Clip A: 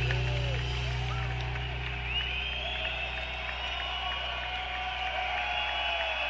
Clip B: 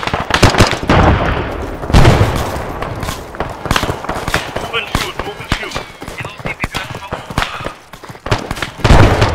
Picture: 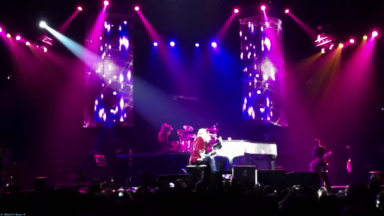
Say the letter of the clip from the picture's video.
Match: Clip A